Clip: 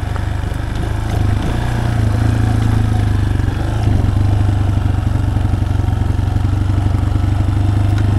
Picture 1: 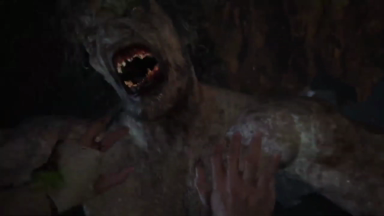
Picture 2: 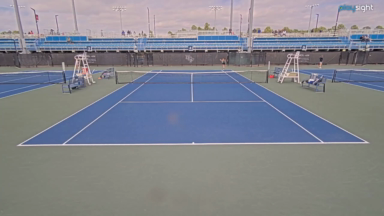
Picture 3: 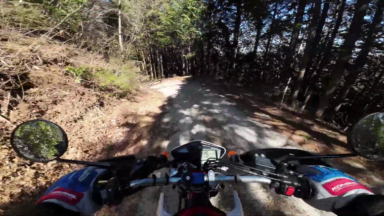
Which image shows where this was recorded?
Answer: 3